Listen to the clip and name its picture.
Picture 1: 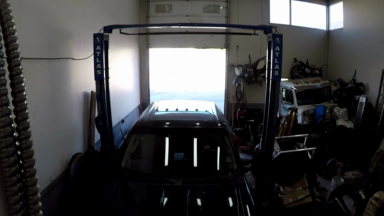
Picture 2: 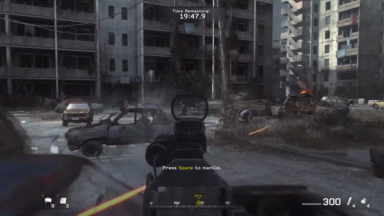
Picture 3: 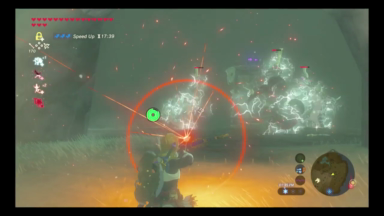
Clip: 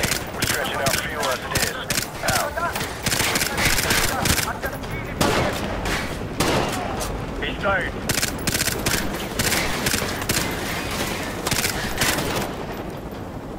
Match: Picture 2